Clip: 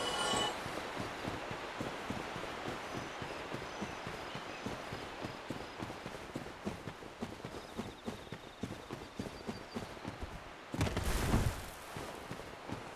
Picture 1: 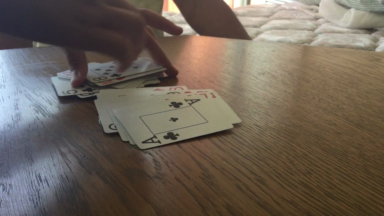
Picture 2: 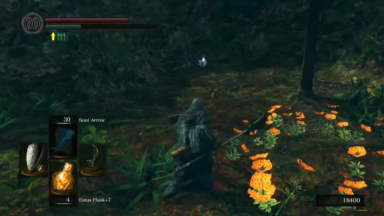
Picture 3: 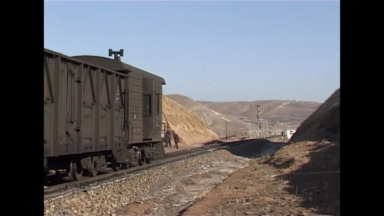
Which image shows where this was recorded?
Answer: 2